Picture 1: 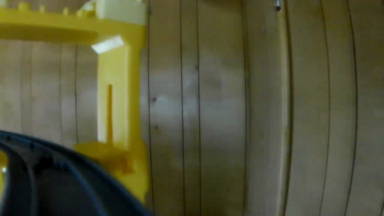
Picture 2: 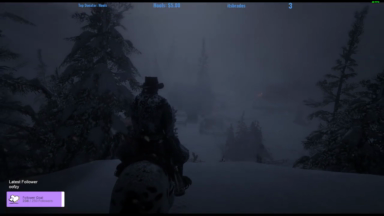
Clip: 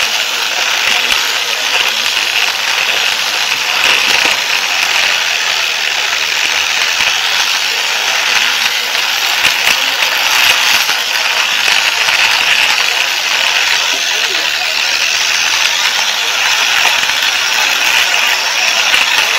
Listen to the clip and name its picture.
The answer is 1